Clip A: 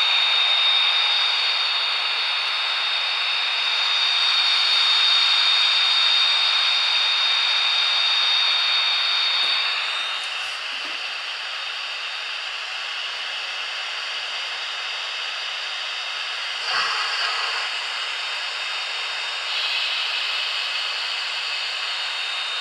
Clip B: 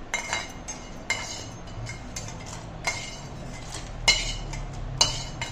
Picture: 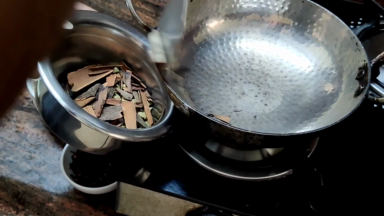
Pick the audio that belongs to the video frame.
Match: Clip B